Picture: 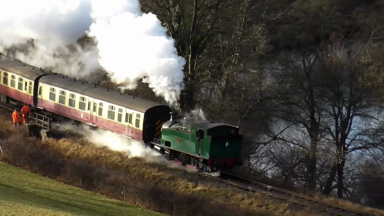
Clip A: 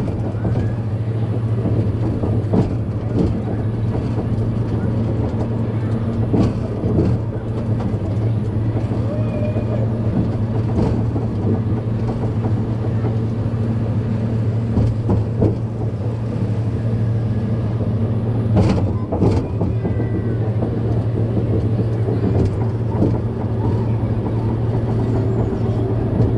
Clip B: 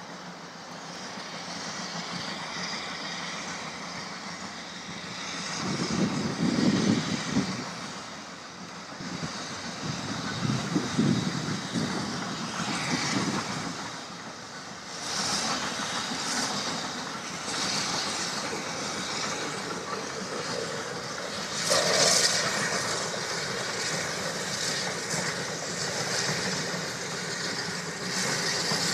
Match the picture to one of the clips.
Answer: B